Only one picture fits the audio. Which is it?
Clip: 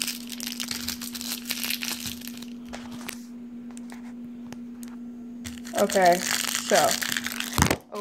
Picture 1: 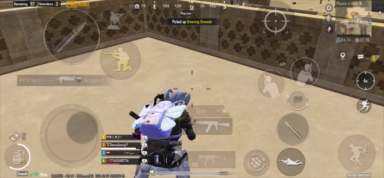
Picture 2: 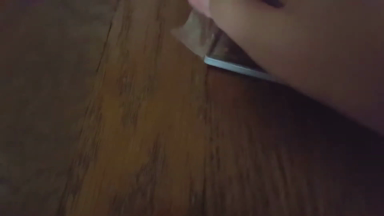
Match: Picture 2